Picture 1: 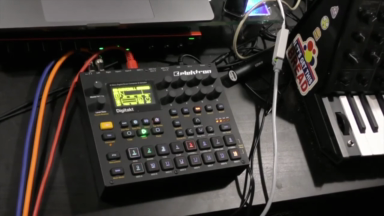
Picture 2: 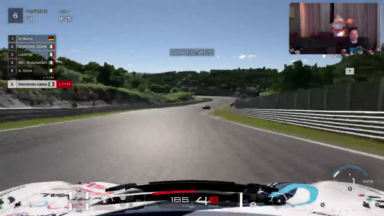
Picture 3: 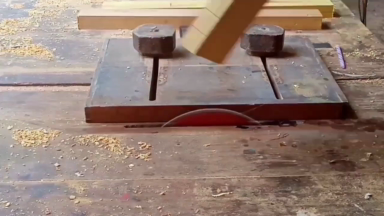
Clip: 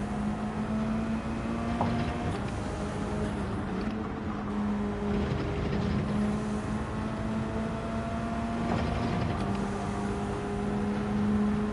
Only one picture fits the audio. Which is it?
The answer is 2